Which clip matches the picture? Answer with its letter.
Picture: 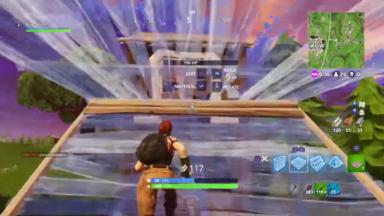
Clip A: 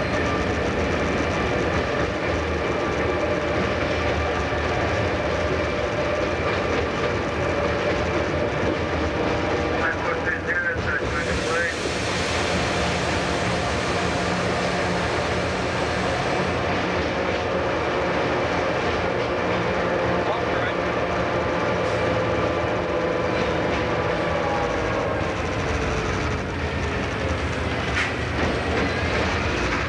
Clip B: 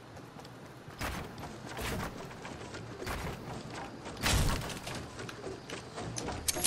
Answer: B